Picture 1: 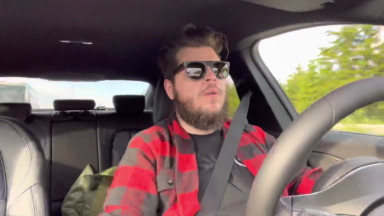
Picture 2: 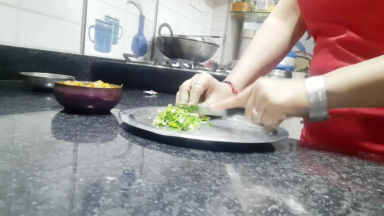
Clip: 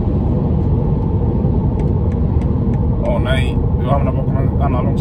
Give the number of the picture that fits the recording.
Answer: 1